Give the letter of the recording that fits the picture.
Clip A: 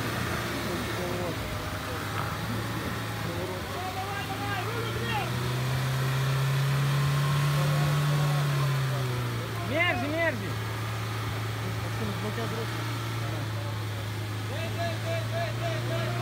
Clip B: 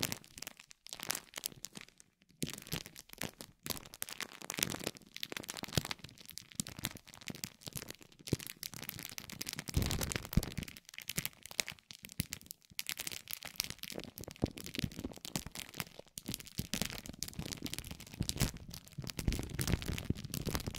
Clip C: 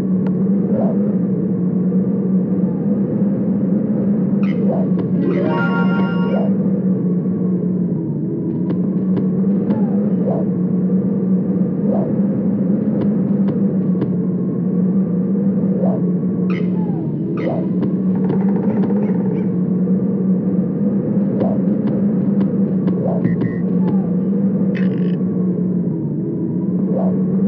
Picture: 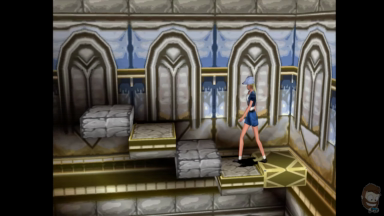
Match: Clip C